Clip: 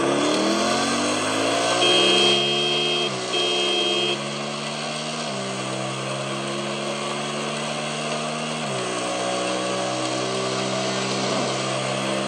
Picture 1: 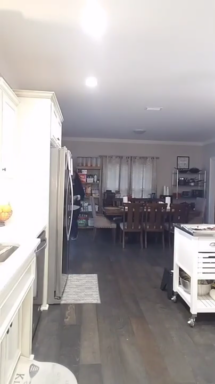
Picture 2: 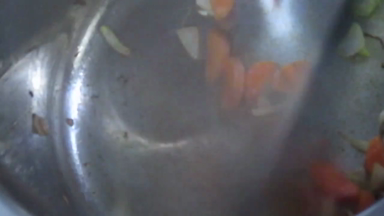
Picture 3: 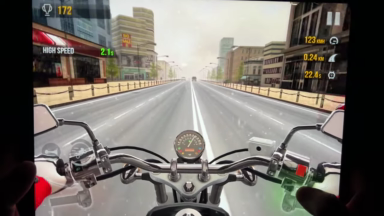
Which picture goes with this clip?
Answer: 3